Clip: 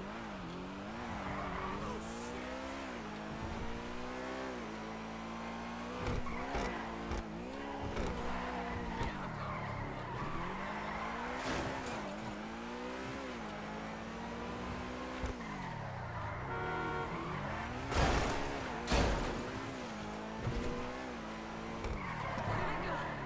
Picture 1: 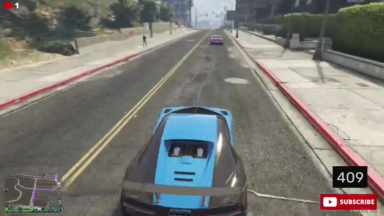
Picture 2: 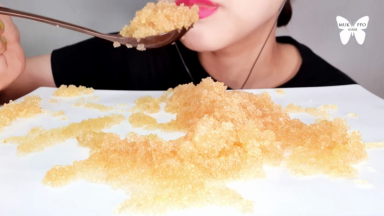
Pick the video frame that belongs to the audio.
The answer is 1